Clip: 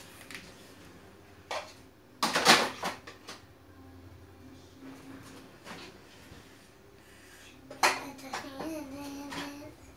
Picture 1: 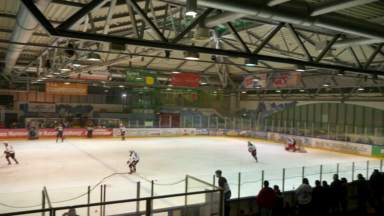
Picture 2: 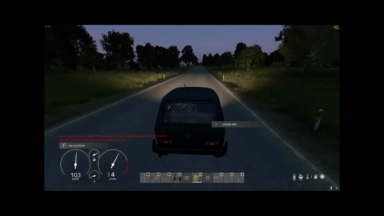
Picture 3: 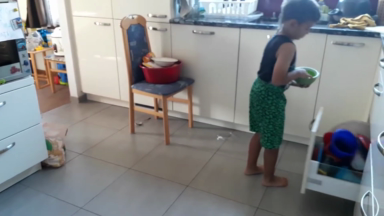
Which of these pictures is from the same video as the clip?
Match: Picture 3